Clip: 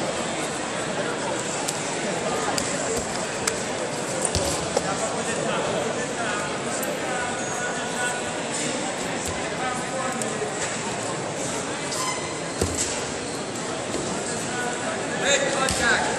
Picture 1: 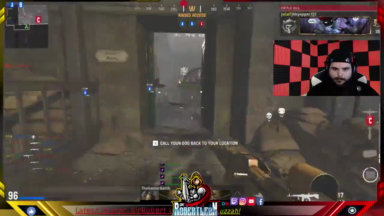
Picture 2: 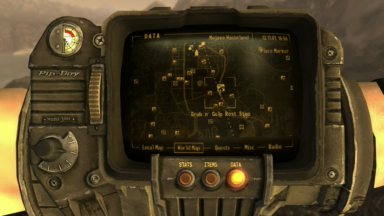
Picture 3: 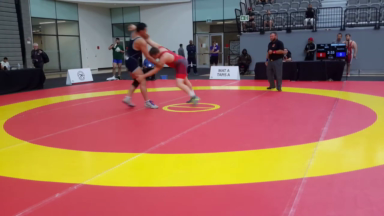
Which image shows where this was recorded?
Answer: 3